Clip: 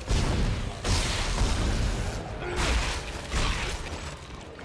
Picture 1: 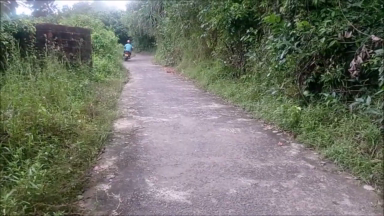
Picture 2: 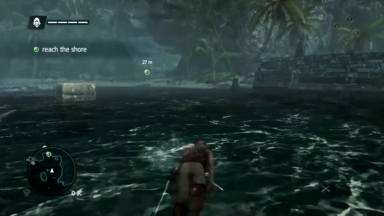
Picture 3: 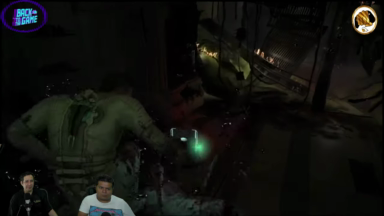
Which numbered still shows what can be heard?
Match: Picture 3